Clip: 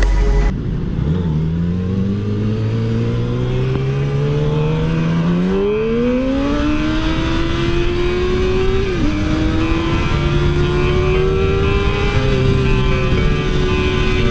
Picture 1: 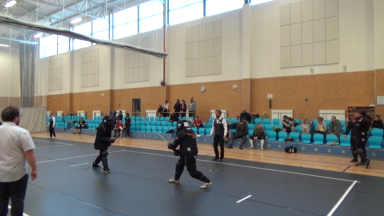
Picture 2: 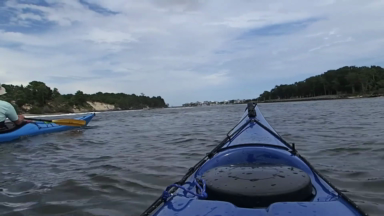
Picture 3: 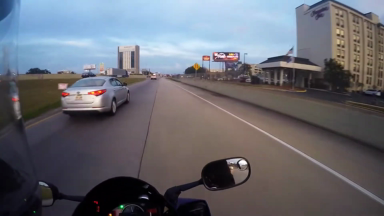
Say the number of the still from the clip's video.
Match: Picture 3